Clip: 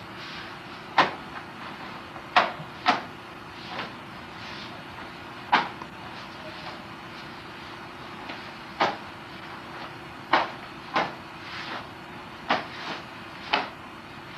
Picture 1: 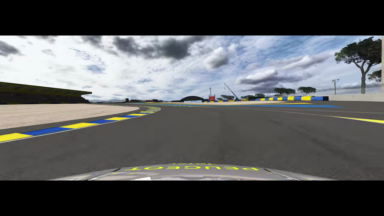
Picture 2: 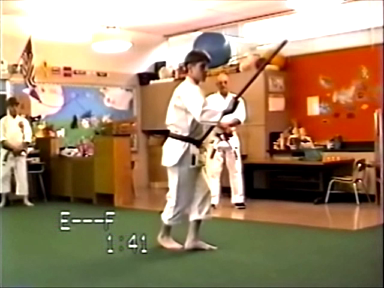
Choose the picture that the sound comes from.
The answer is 2